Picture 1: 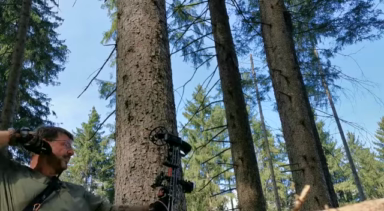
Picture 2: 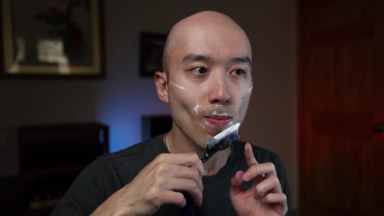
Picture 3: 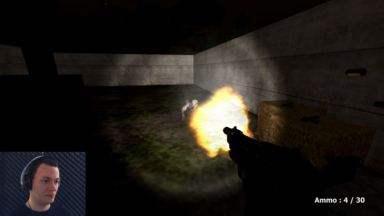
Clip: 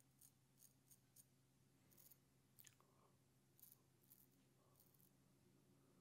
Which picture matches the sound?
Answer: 2